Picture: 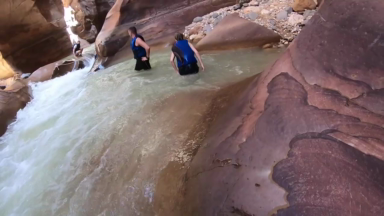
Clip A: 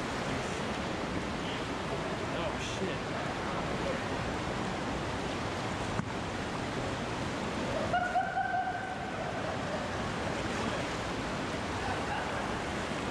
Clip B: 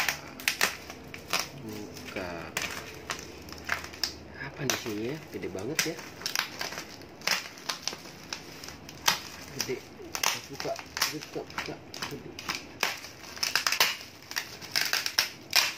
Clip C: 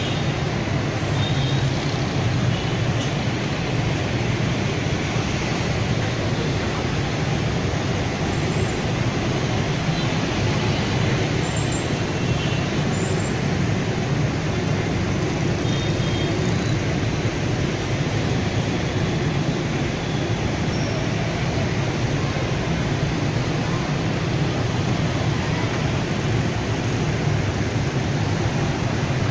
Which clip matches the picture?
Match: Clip A